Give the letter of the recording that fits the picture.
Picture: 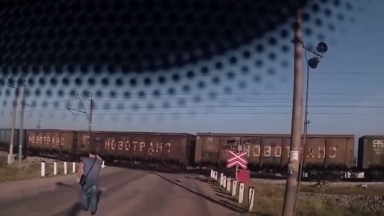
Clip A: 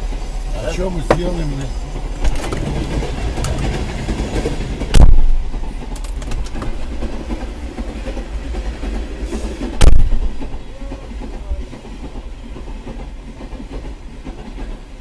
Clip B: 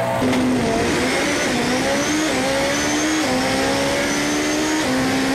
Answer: A